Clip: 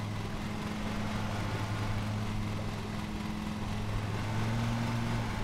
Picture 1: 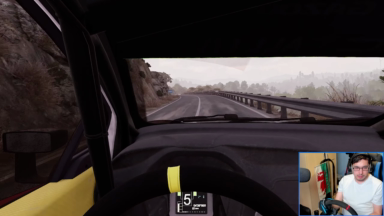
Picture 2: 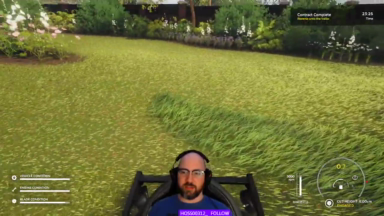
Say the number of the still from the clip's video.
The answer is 2